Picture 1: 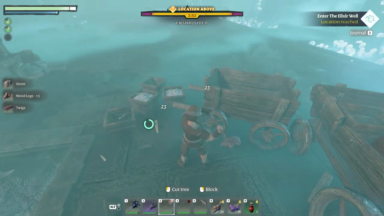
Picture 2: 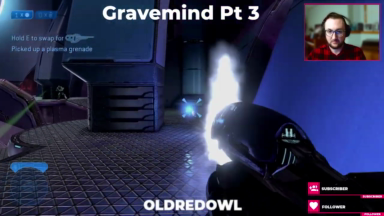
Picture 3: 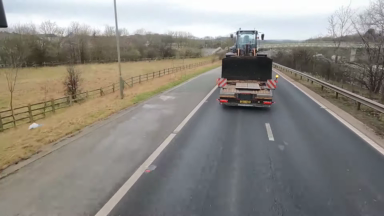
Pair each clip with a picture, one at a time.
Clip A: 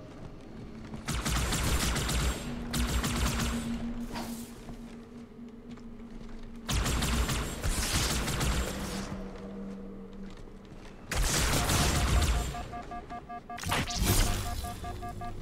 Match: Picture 2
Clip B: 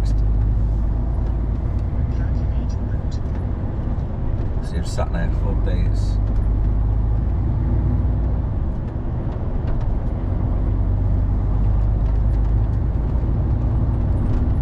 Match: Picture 3